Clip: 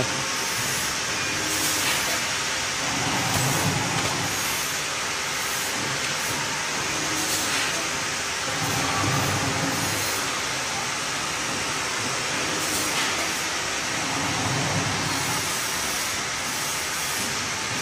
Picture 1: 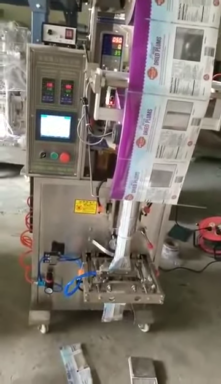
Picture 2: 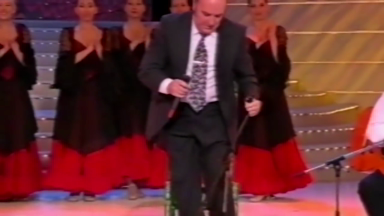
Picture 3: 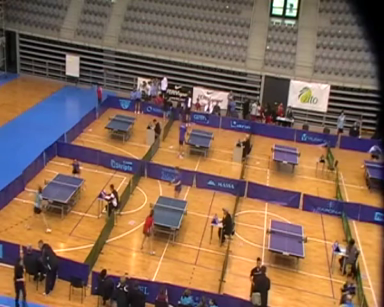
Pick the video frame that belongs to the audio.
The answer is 1